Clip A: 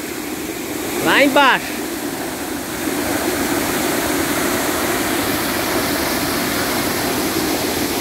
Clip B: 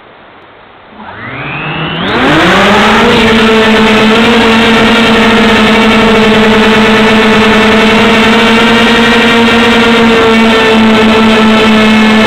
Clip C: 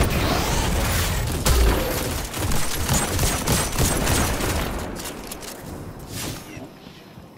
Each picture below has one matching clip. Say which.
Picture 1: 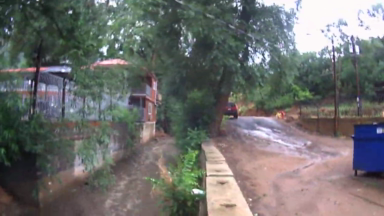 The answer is B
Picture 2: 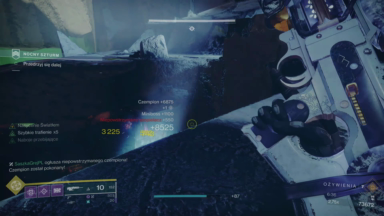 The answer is C